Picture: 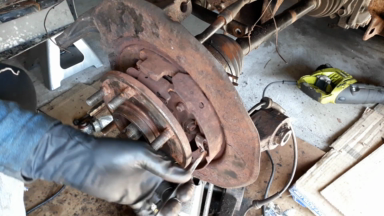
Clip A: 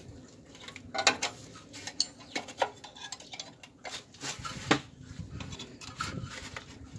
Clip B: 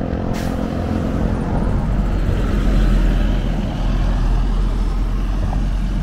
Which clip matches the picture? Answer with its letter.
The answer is A